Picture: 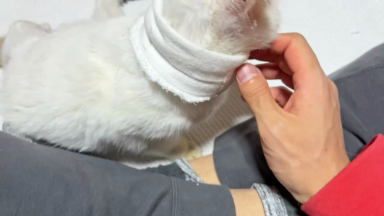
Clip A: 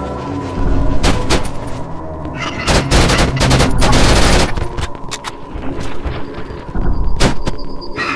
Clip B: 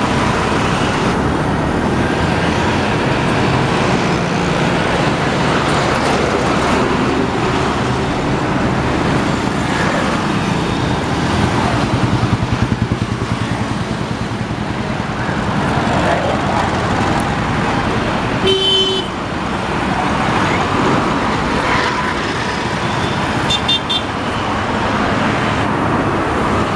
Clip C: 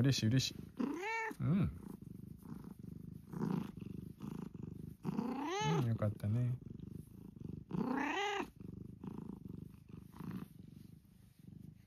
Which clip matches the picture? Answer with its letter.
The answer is C